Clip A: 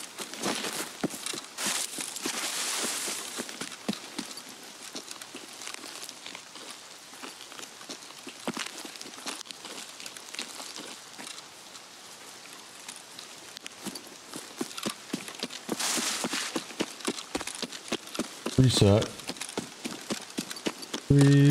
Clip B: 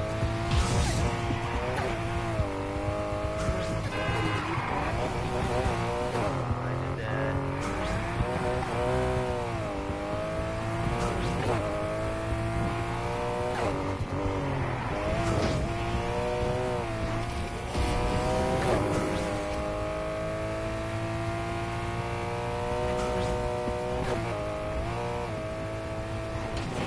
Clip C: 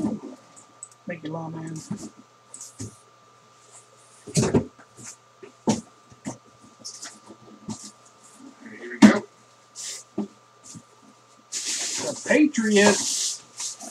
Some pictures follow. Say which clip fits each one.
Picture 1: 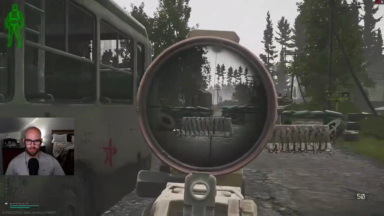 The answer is A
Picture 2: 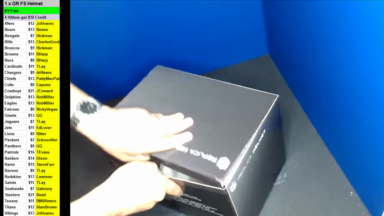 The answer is C